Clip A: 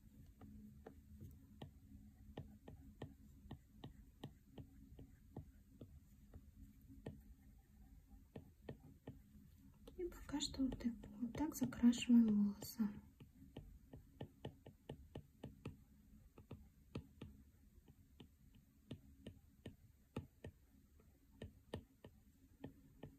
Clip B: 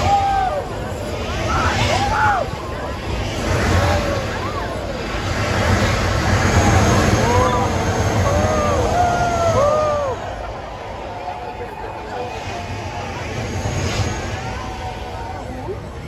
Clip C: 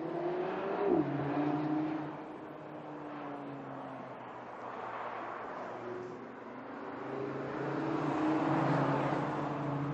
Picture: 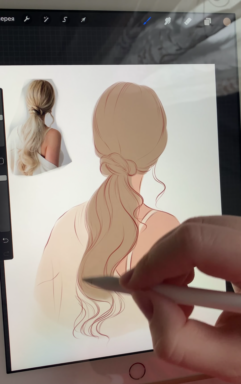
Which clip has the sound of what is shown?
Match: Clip A